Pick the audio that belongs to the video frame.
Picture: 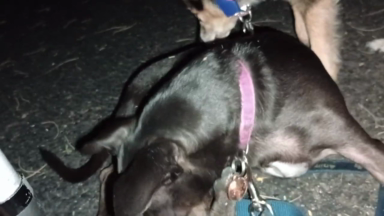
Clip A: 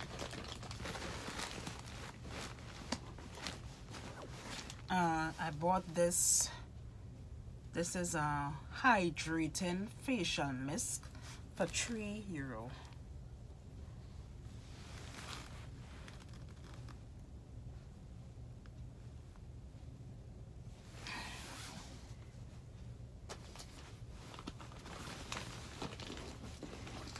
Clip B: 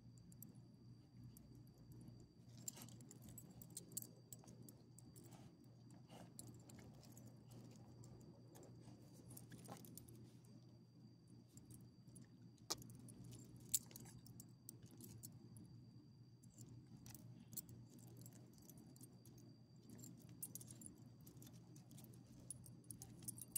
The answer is B